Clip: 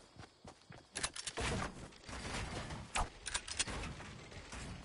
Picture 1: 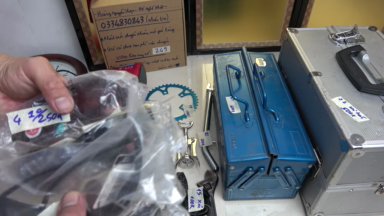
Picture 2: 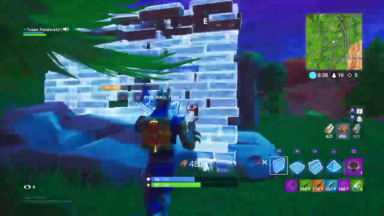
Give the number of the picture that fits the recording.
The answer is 2